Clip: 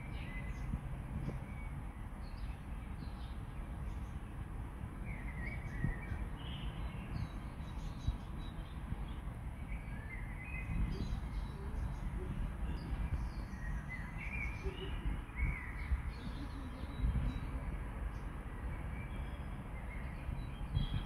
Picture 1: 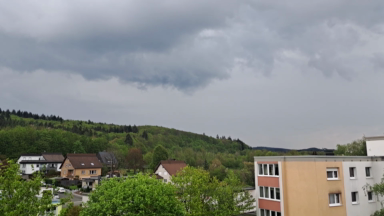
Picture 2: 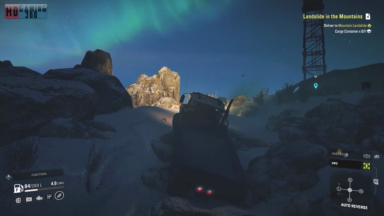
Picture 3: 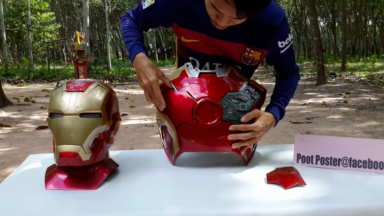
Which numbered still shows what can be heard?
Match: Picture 1